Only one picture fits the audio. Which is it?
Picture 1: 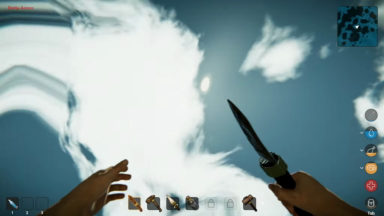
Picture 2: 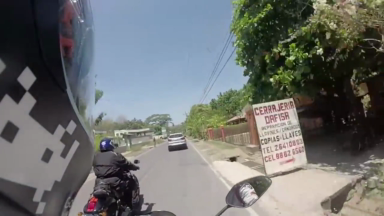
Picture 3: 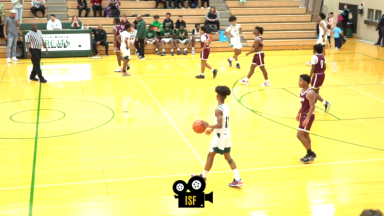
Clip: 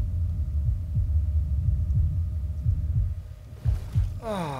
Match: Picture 1